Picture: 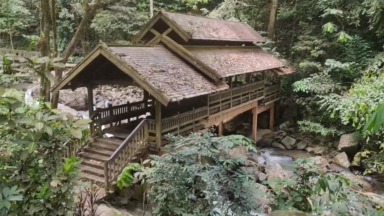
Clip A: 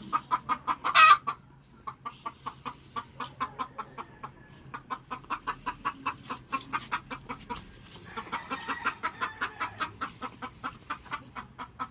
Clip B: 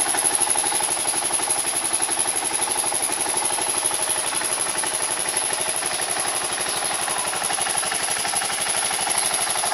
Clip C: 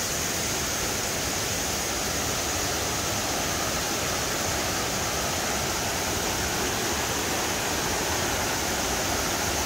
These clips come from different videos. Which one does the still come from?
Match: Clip C